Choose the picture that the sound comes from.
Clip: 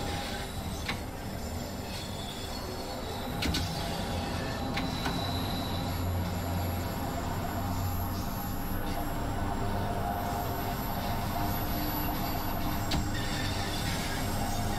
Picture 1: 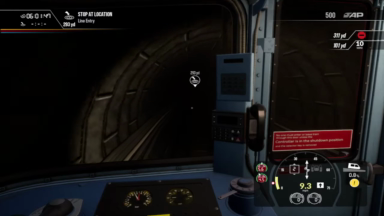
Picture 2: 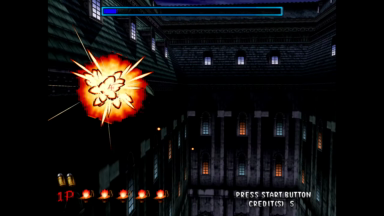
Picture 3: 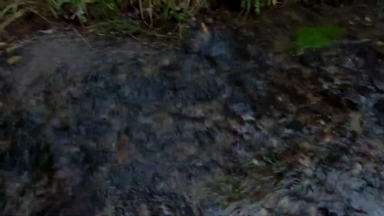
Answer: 1